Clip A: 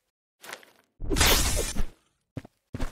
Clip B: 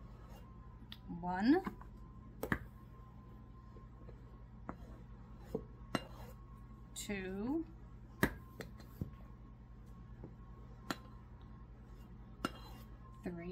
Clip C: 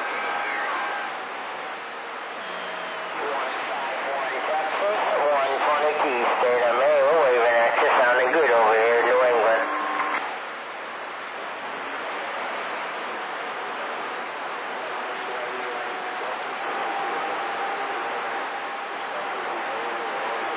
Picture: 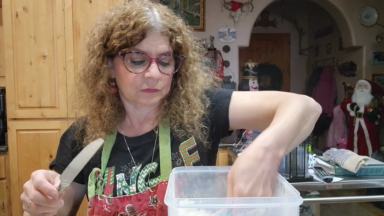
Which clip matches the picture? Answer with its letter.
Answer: B